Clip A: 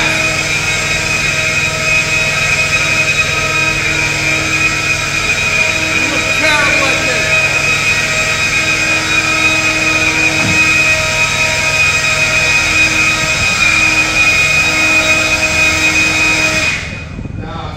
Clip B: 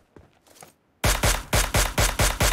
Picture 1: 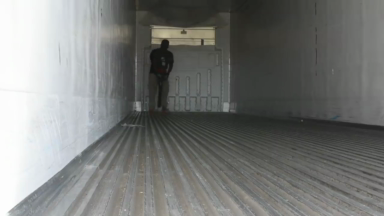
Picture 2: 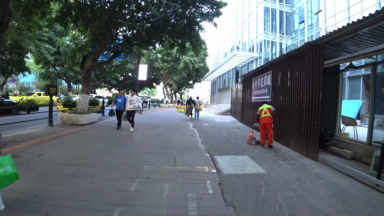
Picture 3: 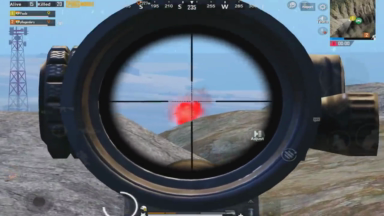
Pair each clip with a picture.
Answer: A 1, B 3